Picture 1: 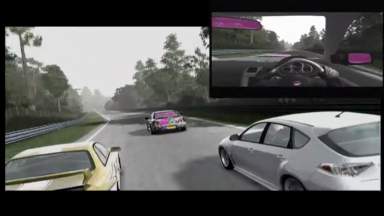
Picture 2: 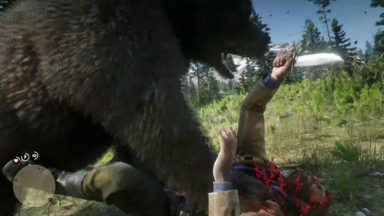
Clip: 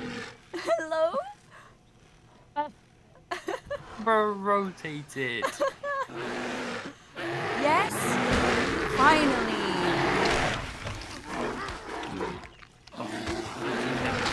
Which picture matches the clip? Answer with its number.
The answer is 2